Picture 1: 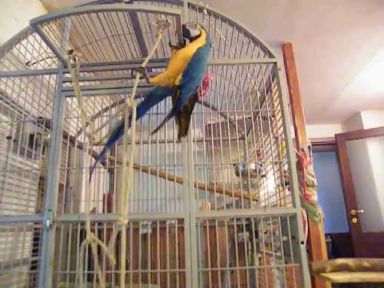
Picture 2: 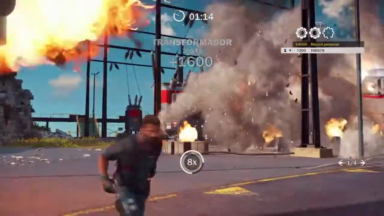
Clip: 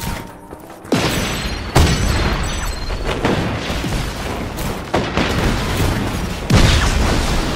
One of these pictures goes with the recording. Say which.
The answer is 2